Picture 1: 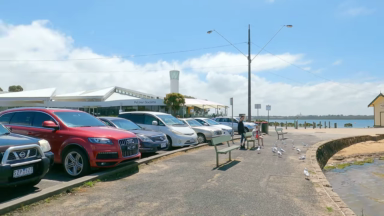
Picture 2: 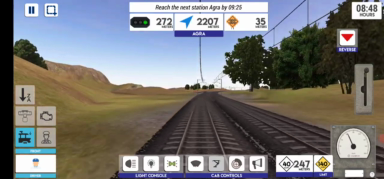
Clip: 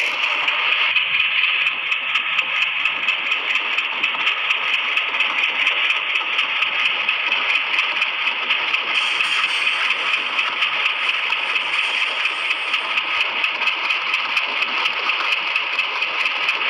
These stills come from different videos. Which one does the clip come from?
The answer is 2